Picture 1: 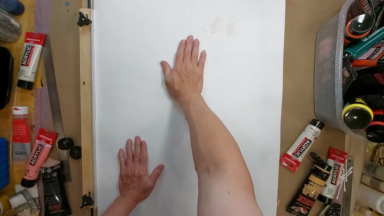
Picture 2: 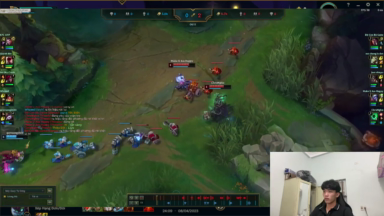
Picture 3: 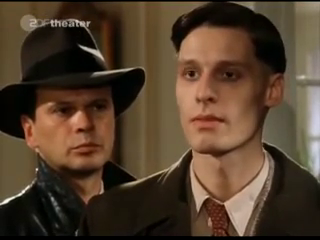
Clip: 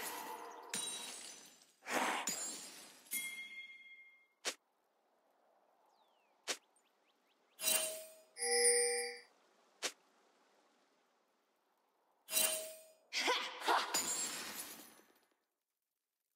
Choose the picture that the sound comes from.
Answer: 2